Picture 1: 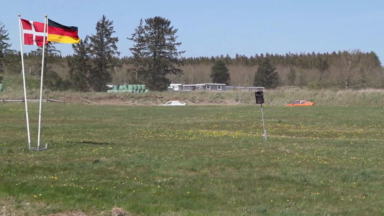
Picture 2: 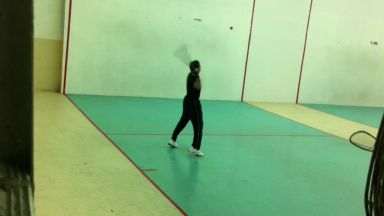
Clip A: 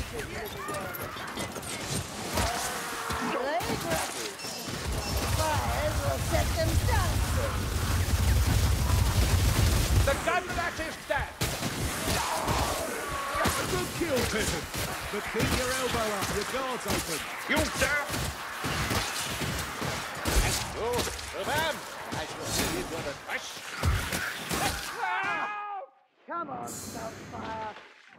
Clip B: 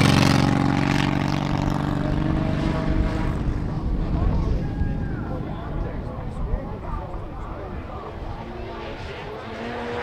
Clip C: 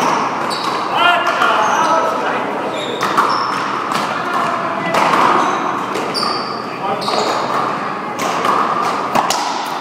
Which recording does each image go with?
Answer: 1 B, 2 C